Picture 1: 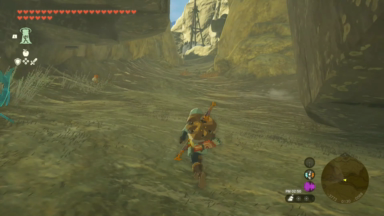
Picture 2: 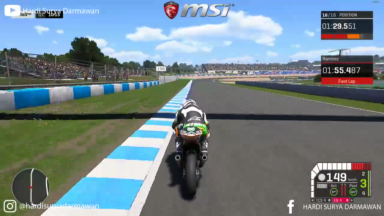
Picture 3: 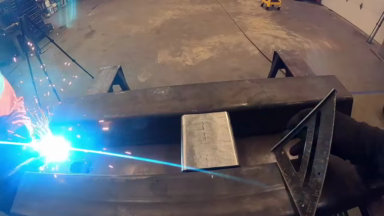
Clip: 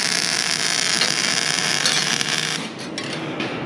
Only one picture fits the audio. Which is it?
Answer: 3